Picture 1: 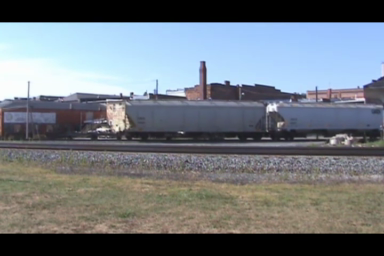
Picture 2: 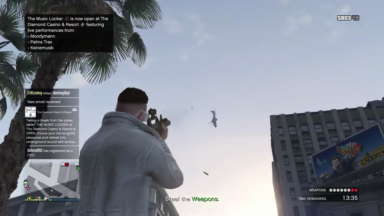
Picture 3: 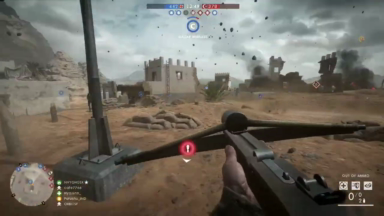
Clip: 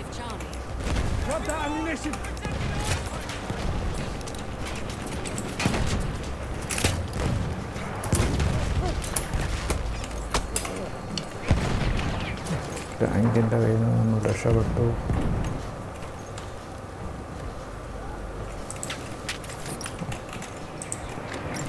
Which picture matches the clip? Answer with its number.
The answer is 3